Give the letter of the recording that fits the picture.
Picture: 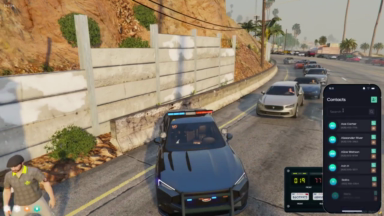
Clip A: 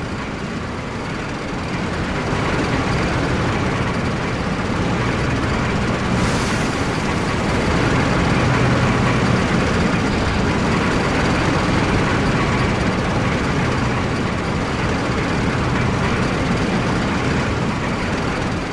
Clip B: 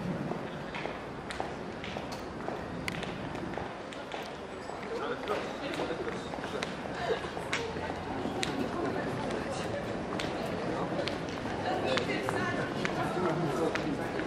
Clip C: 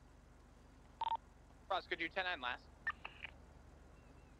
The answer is C